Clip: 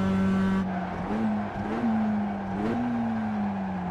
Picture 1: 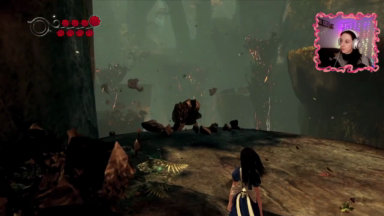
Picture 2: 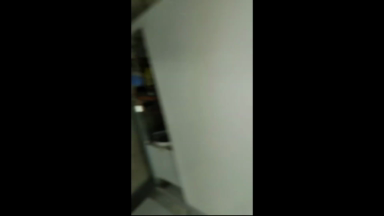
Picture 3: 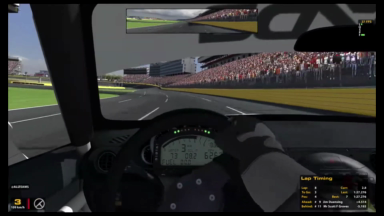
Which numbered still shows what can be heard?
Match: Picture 3